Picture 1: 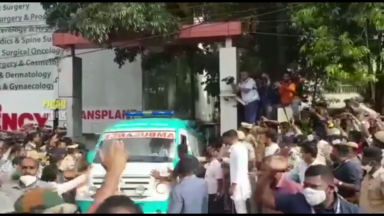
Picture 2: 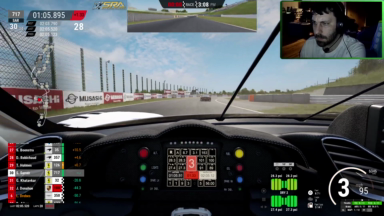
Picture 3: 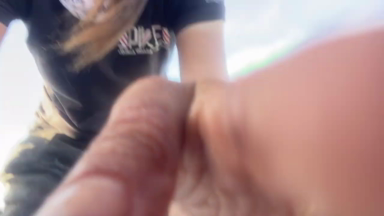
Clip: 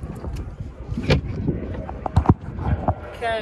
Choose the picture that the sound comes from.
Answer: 3